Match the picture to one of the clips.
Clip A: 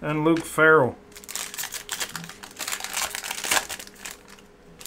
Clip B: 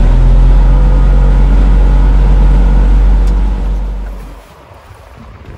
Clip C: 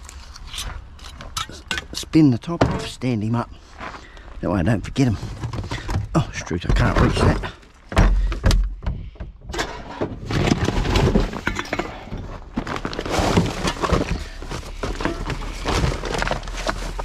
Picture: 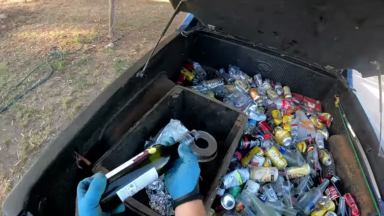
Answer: C